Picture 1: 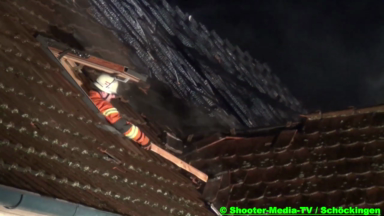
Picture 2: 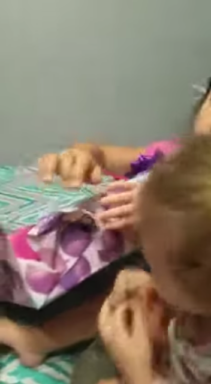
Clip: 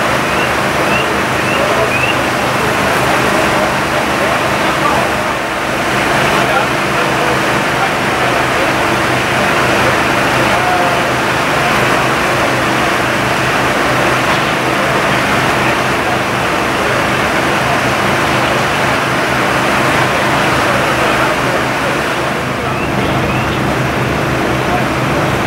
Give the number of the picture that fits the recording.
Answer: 1